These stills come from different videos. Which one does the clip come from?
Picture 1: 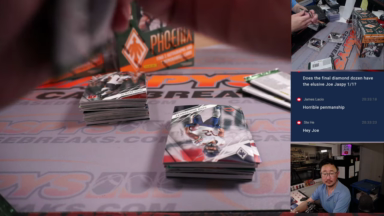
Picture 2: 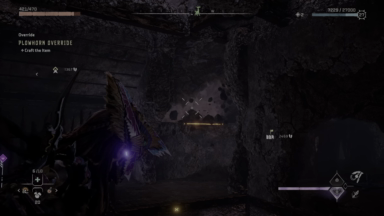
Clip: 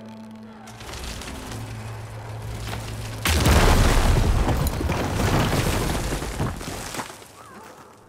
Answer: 2